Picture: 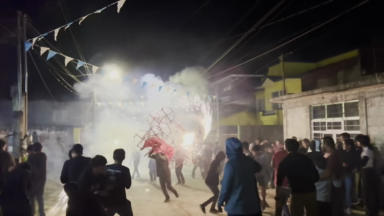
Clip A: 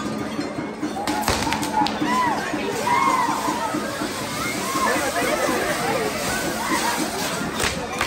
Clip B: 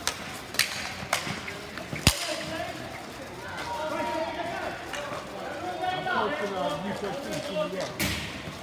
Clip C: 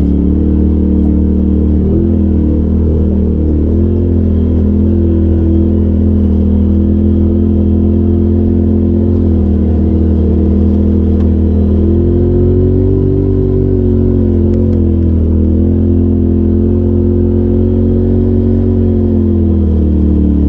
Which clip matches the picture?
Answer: A